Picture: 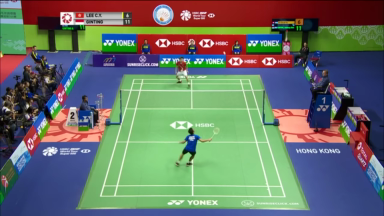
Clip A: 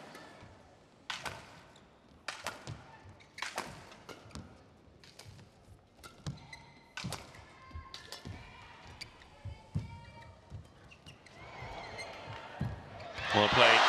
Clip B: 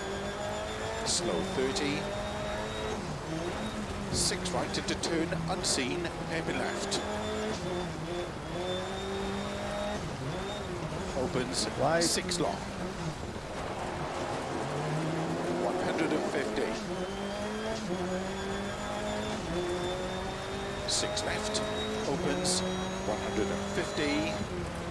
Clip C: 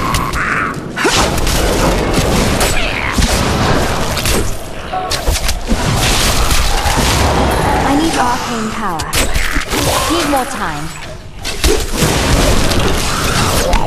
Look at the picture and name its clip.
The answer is A